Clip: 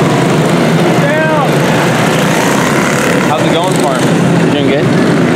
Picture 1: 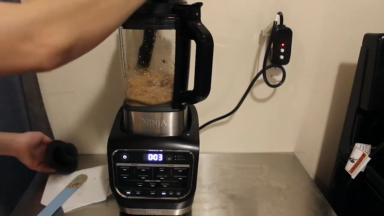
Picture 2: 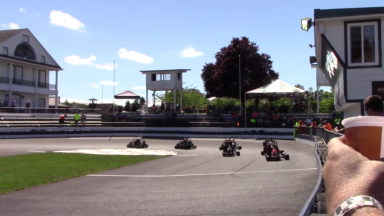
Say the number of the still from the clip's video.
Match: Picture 2